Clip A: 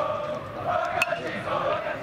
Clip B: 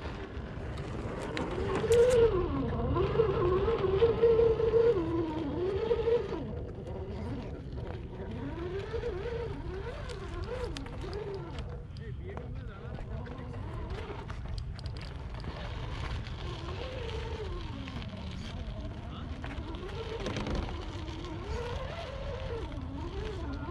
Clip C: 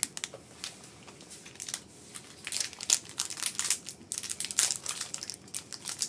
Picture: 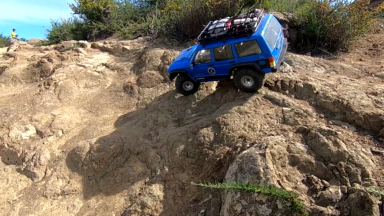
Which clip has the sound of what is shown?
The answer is B